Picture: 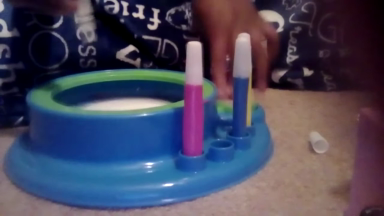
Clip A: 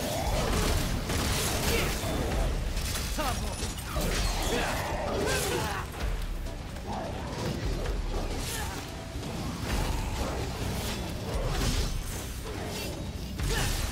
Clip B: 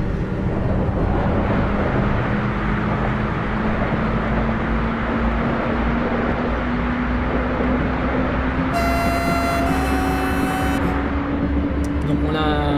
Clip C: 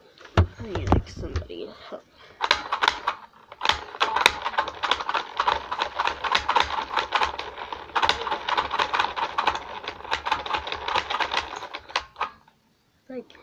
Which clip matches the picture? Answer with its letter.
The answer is C